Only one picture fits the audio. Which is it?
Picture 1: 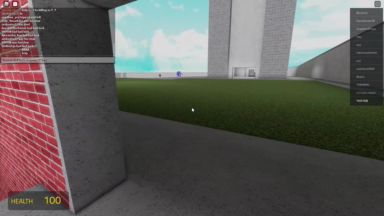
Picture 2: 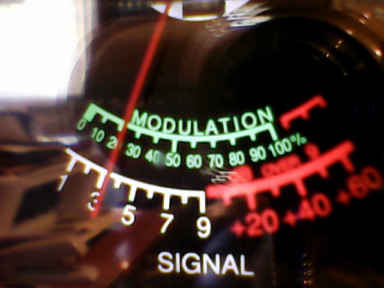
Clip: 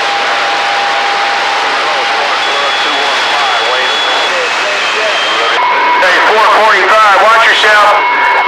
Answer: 2